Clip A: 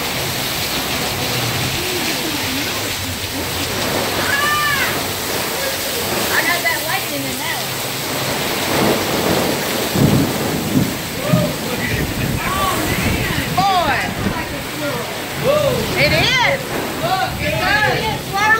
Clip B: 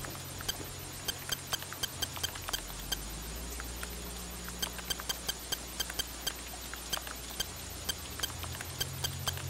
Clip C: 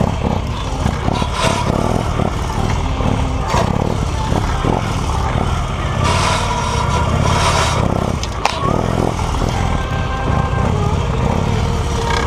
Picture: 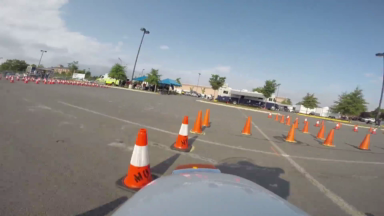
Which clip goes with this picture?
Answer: C